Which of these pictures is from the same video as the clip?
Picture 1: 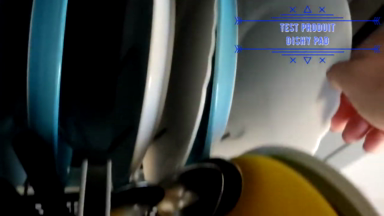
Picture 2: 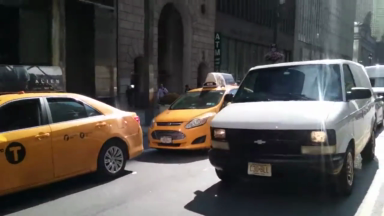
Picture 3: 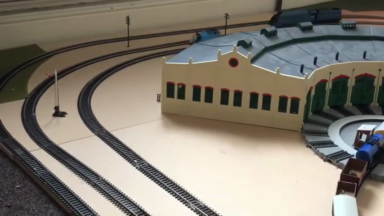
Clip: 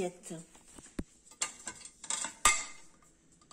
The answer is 1